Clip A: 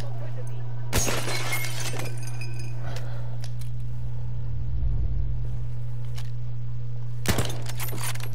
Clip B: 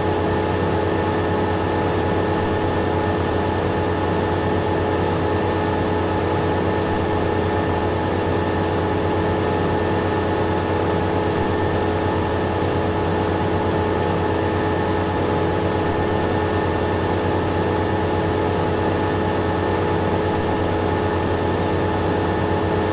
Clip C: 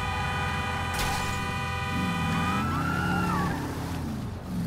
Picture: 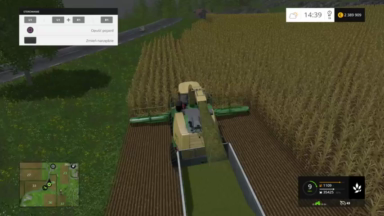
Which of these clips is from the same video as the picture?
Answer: B